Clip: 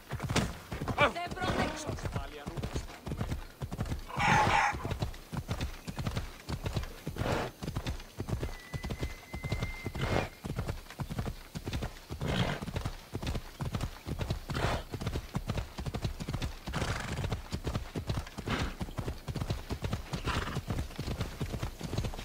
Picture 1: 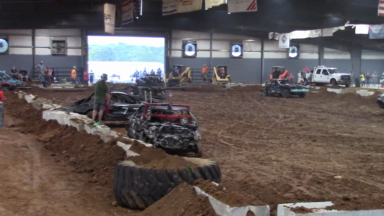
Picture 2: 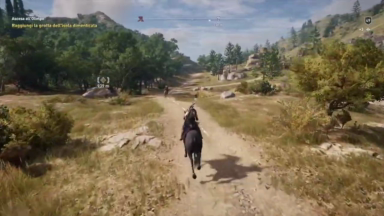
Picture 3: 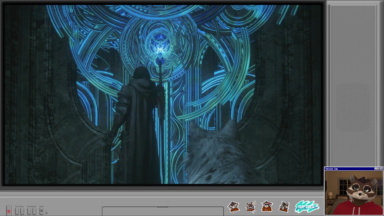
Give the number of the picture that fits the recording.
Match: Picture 2